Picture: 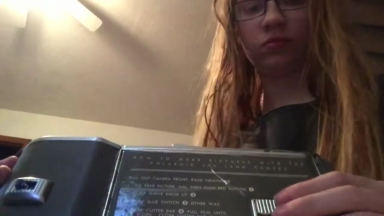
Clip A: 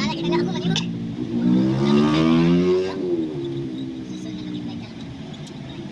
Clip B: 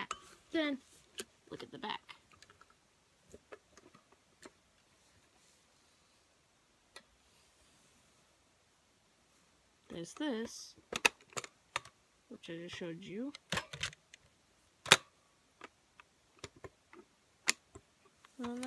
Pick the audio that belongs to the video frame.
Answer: B